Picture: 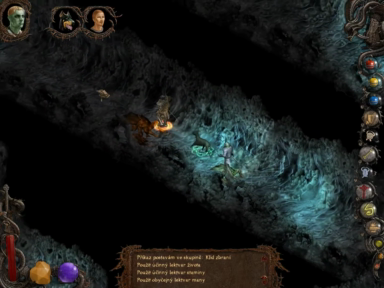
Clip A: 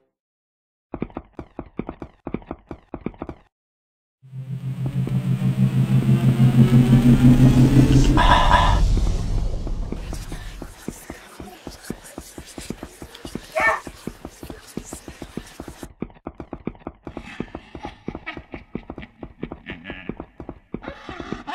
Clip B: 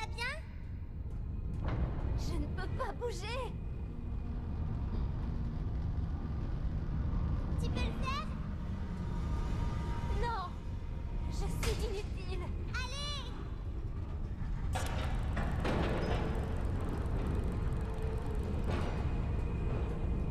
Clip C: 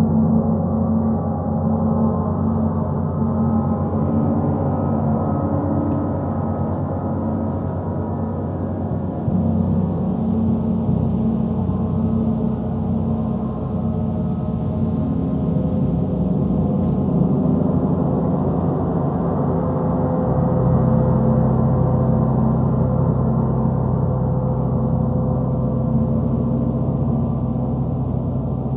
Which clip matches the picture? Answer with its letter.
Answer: A